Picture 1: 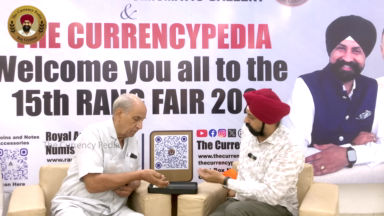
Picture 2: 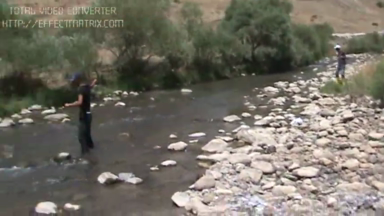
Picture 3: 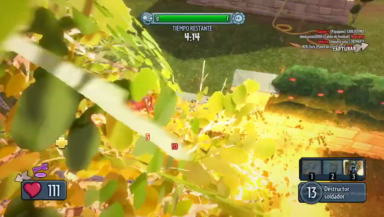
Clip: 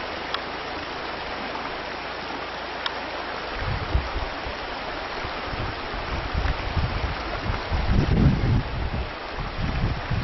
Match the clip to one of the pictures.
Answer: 2